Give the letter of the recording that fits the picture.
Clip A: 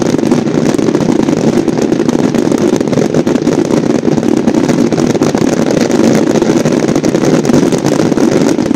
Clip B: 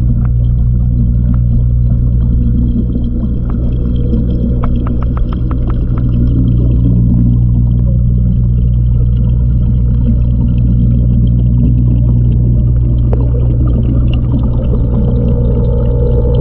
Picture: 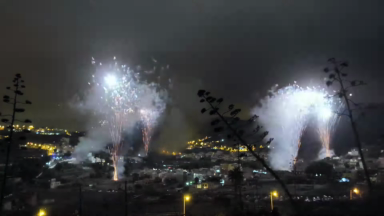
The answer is A